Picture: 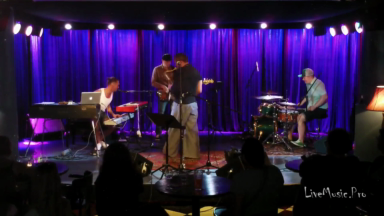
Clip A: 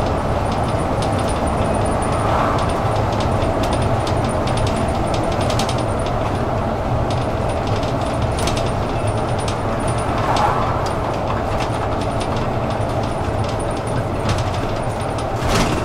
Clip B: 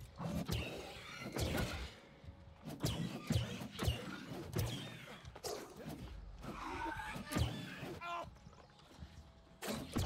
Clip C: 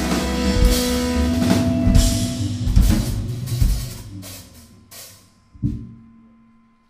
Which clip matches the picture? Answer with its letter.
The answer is C